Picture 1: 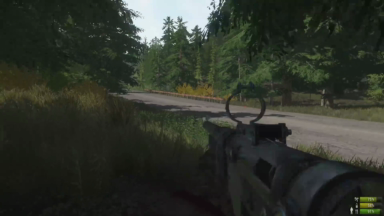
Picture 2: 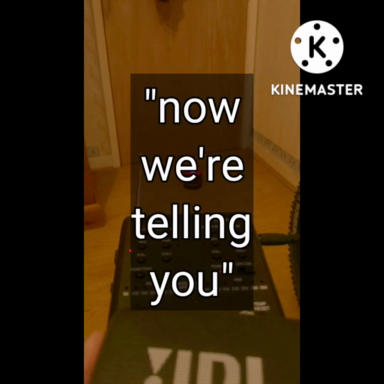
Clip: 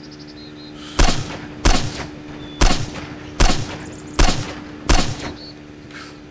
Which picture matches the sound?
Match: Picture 1